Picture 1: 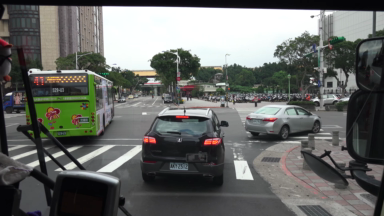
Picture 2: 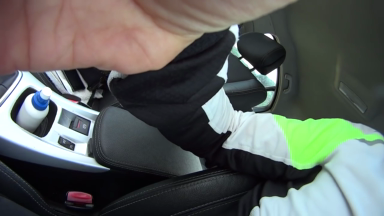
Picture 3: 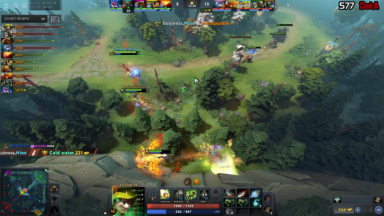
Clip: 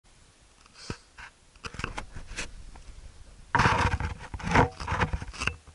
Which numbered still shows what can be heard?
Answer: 2